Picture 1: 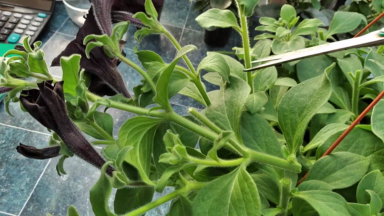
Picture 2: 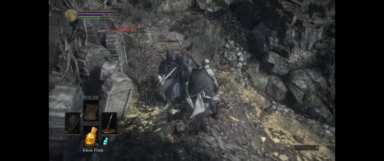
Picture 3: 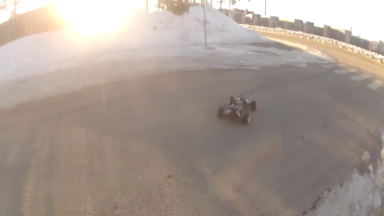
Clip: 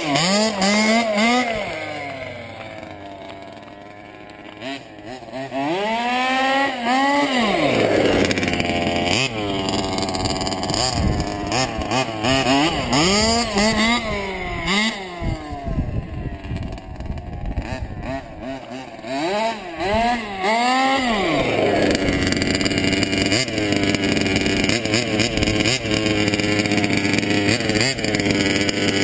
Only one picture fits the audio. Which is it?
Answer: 3